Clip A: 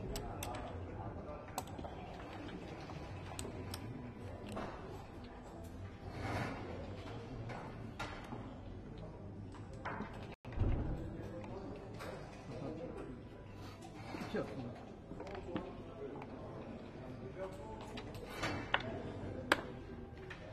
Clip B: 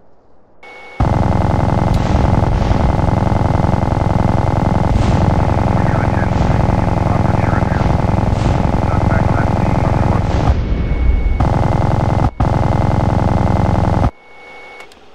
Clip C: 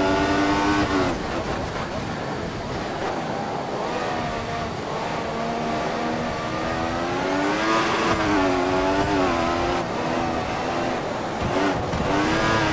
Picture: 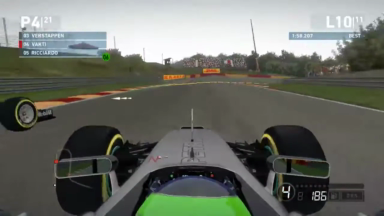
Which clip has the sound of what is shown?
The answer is C